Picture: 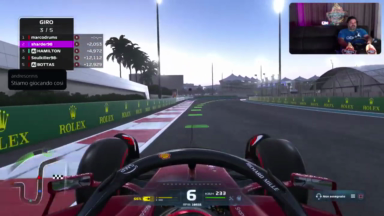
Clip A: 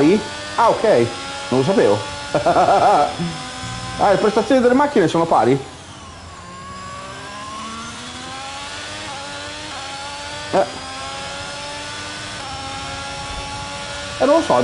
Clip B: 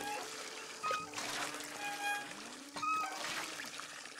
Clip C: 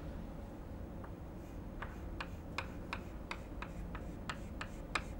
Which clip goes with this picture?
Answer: A